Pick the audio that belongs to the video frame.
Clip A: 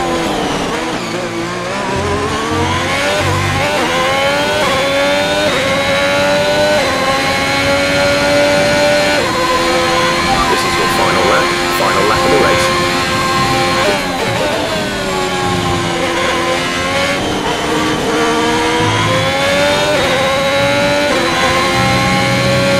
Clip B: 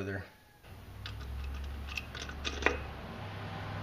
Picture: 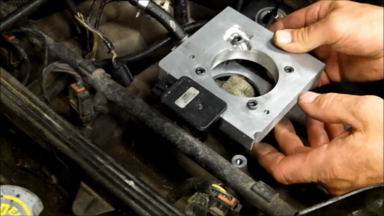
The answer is B